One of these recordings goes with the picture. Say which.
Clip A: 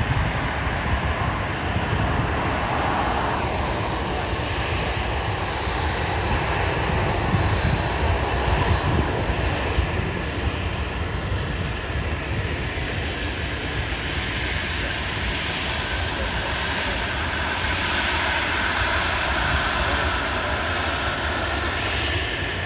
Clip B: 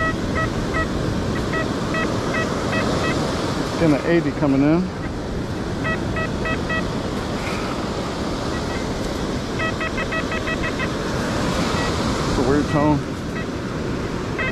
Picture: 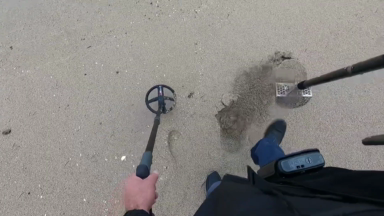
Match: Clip B